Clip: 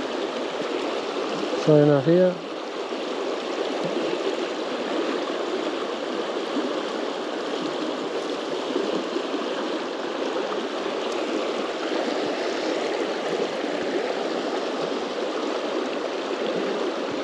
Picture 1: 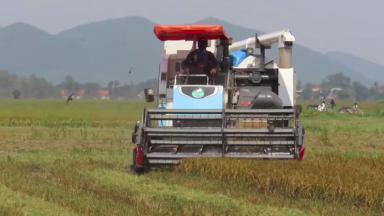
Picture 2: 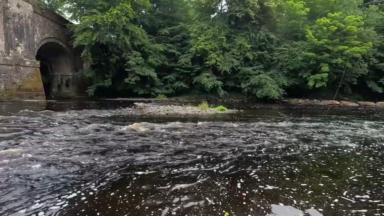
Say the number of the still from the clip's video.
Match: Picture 2